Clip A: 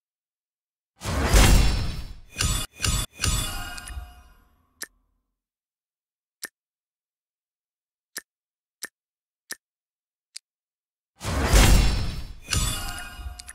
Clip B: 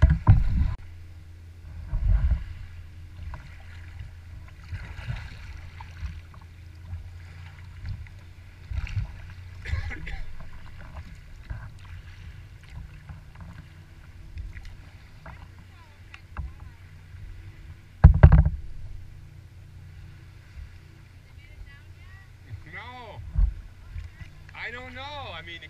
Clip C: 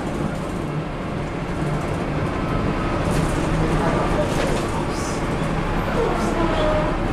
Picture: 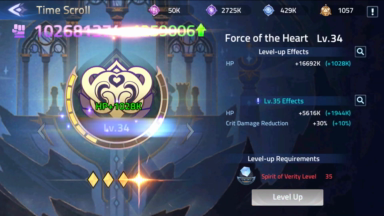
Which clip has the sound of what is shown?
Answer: A